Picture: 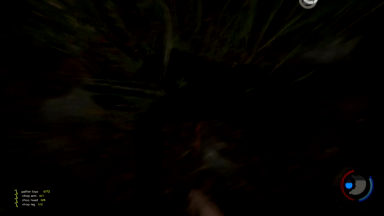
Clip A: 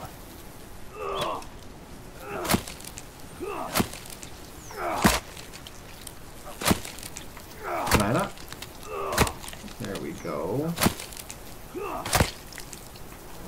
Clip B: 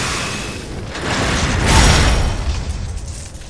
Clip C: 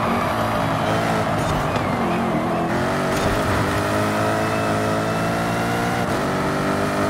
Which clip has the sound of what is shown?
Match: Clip A